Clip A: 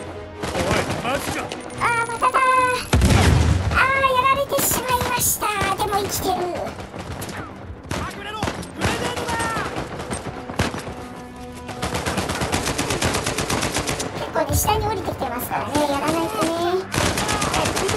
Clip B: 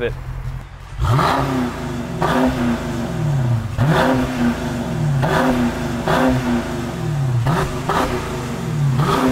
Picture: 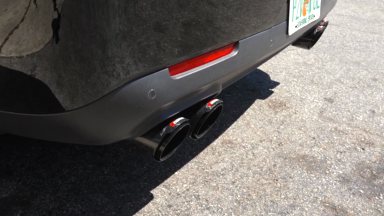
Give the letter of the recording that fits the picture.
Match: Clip B